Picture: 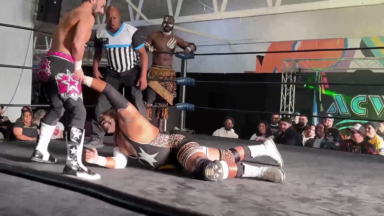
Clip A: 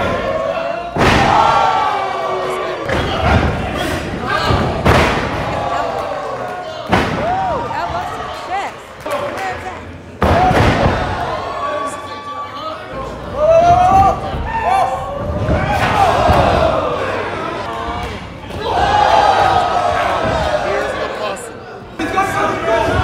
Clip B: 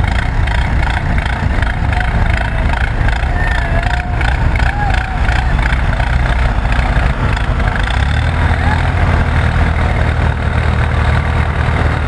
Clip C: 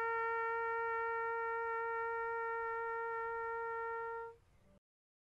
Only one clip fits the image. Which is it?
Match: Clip A